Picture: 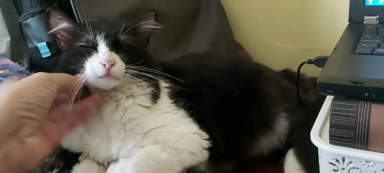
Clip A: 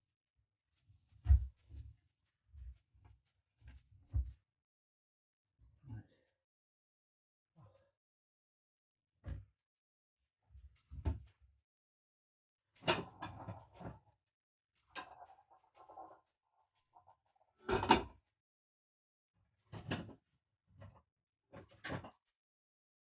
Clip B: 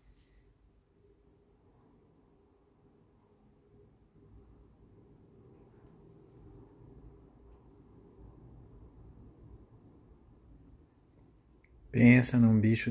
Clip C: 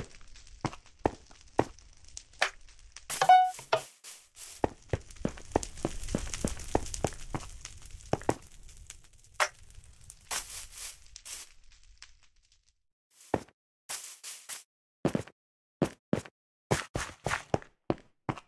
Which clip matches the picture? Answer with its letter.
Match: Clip B